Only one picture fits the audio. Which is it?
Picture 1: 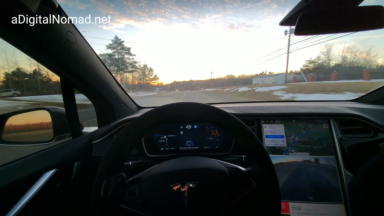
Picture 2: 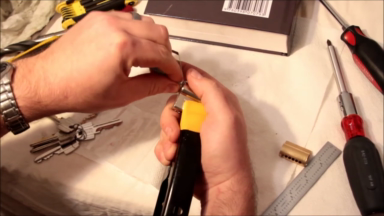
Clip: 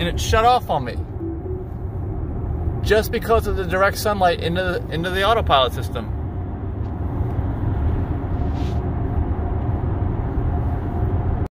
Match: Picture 1